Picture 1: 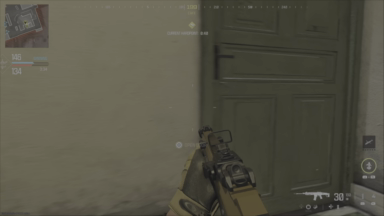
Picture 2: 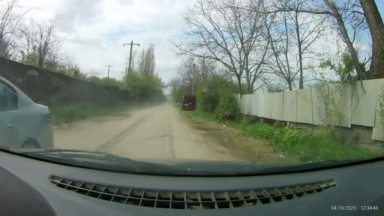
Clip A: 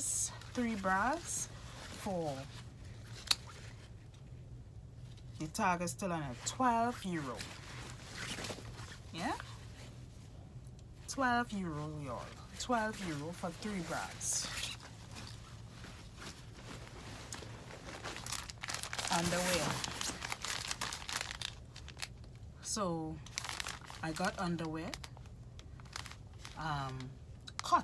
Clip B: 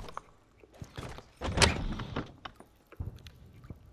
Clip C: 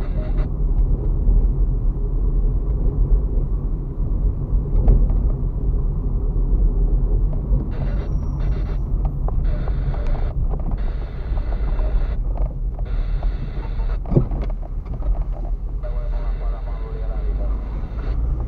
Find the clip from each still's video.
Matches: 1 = B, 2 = C